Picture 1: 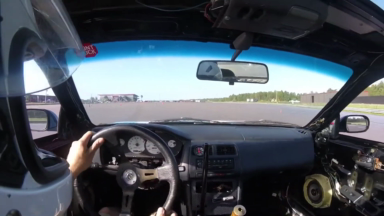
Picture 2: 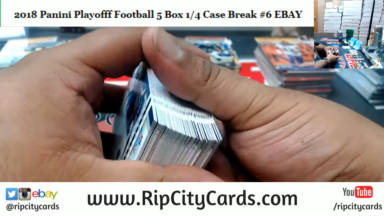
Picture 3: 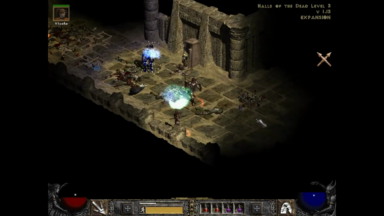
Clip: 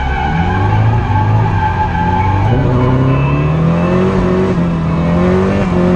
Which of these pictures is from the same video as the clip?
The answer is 1